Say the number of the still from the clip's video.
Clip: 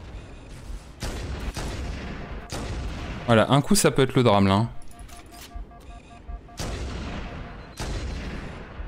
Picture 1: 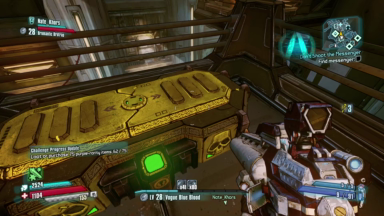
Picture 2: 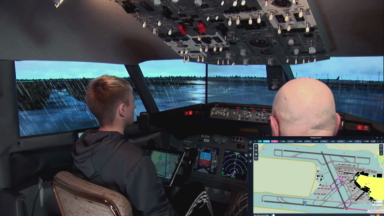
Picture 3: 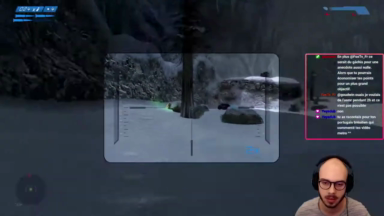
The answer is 3